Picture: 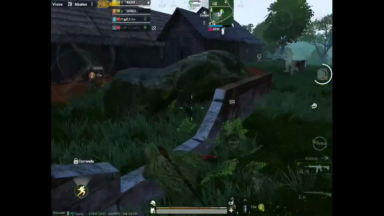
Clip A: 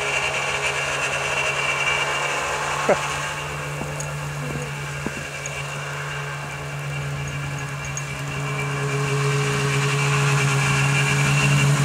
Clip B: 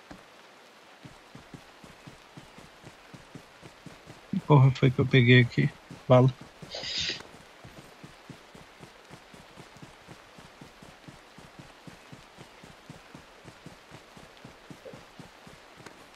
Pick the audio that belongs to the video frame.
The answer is B